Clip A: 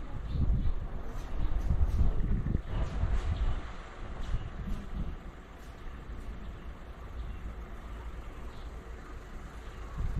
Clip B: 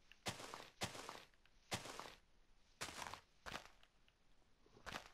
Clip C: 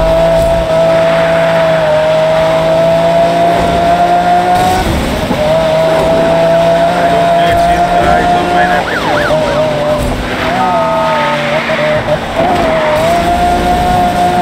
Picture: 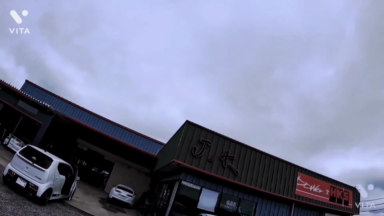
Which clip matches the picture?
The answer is A